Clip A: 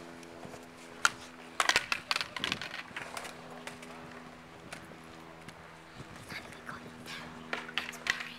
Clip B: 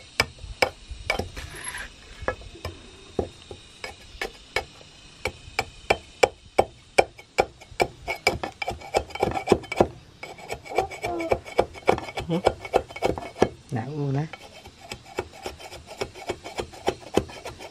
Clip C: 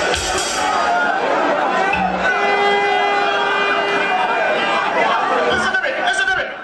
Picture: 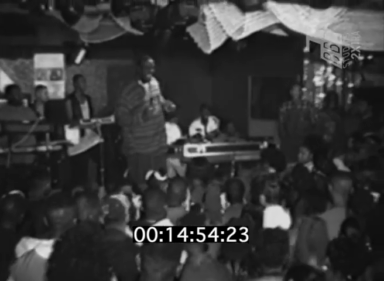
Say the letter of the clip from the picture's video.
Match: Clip C